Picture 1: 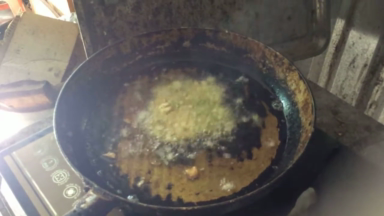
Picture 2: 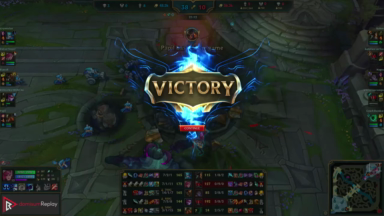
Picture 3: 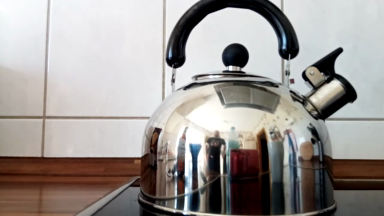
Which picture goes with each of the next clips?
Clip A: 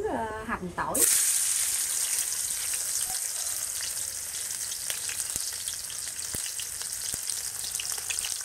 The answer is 1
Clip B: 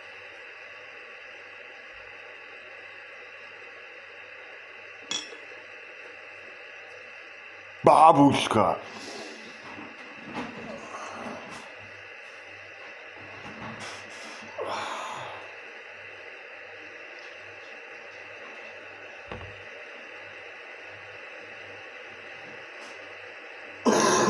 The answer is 3